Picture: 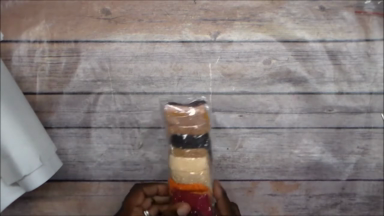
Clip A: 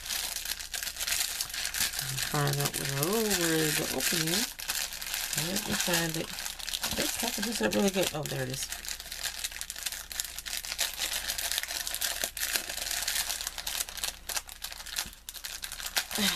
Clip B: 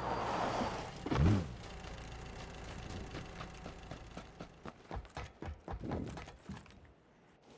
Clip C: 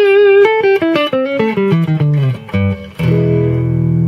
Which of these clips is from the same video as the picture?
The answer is A